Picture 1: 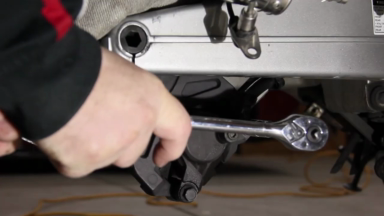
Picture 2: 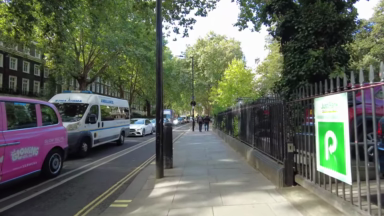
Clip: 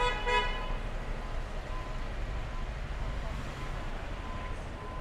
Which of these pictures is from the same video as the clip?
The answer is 2